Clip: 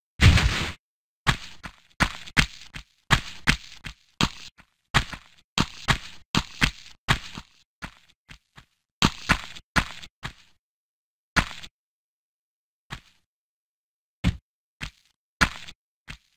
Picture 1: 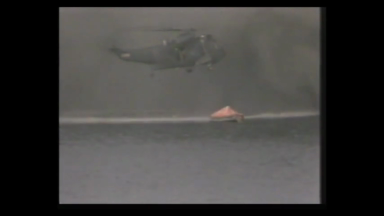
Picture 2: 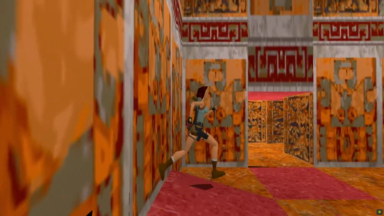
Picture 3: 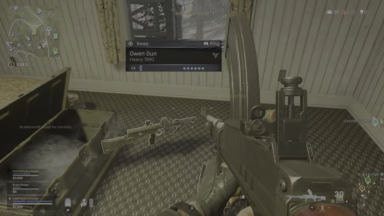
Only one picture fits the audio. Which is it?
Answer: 2